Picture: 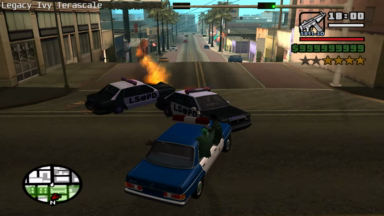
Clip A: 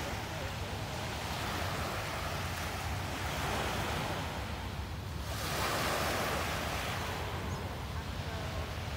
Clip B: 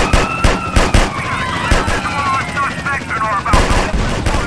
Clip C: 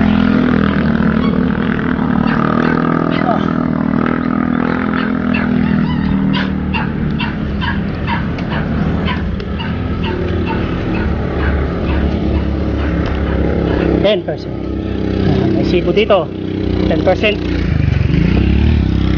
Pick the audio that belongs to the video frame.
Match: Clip B